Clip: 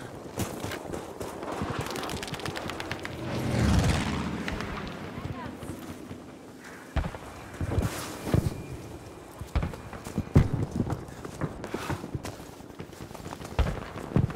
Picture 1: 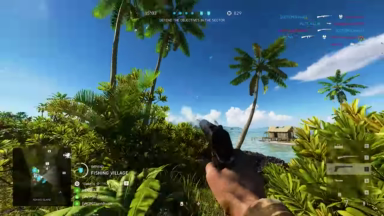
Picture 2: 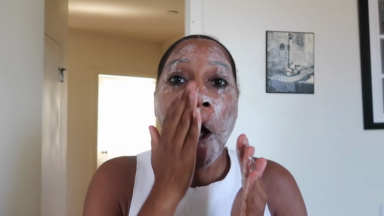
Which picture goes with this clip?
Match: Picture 1